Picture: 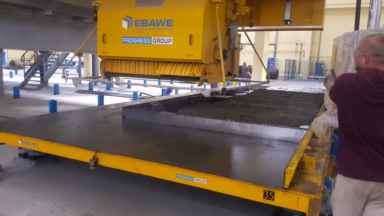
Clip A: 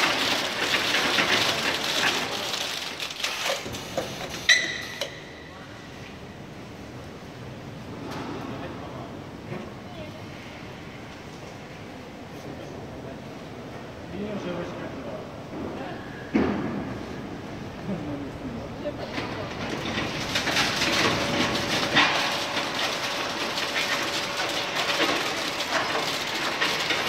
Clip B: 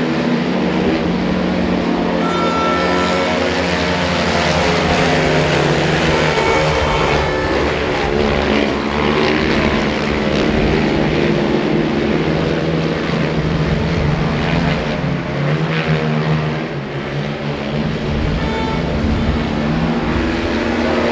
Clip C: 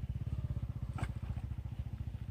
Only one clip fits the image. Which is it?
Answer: A